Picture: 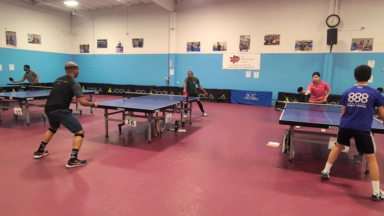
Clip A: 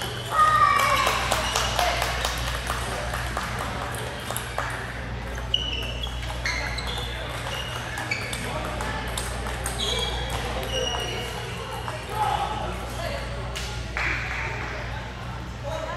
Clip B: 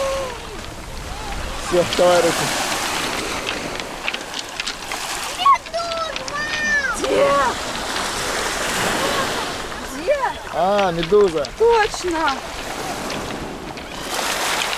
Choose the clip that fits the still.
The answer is A